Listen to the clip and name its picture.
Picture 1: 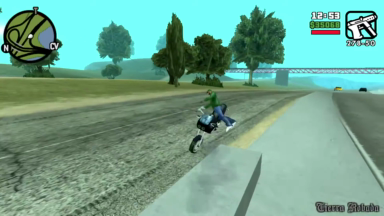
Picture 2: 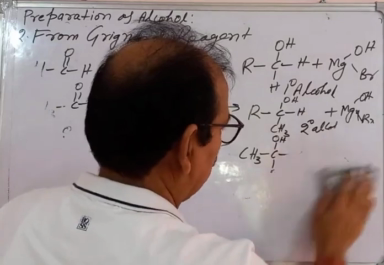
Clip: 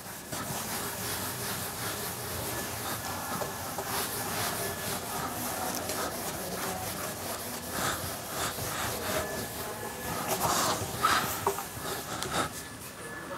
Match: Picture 2